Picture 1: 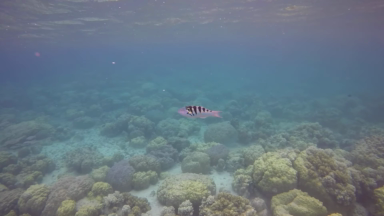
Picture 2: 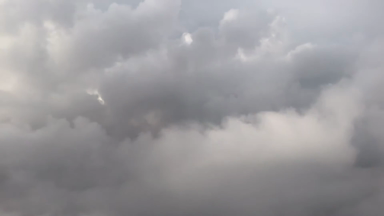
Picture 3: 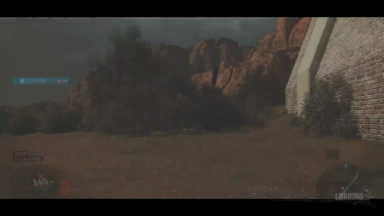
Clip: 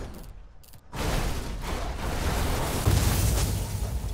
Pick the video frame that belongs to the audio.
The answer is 3